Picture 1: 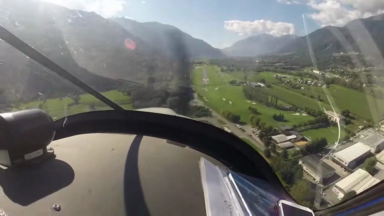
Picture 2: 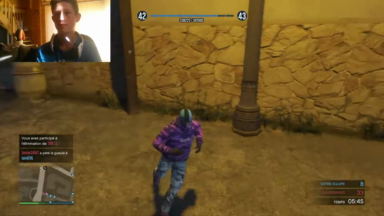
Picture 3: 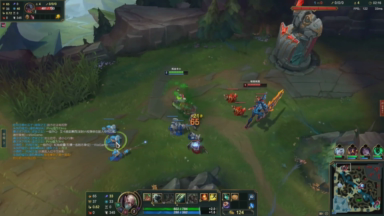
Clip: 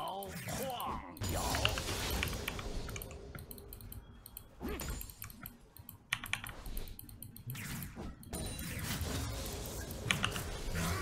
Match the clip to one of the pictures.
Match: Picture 3